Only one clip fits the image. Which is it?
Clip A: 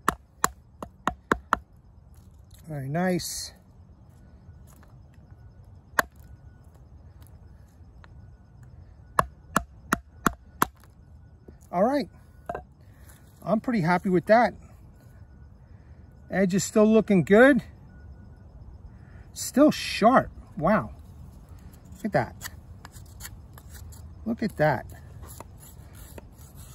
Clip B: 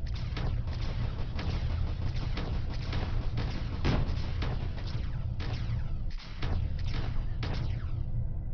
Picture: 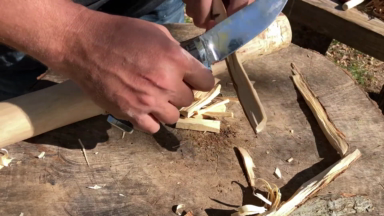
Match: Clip A